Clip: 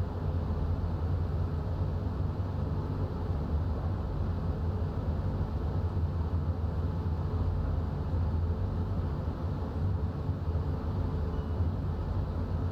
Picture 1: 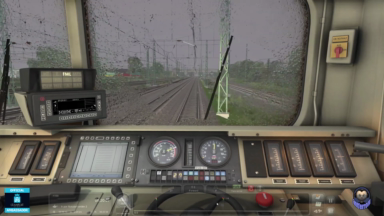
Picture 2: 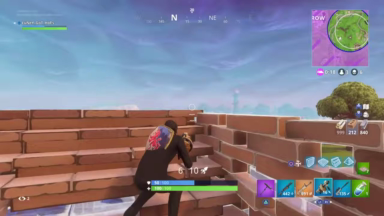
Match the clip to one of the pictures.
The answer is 1